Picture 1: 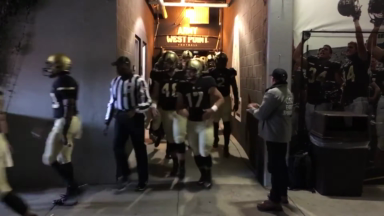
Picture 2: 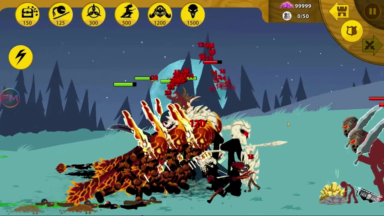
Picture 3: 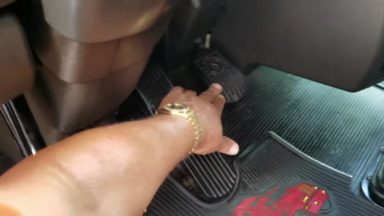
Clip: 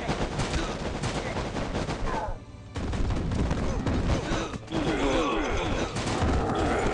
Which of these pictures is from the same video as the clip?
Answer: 2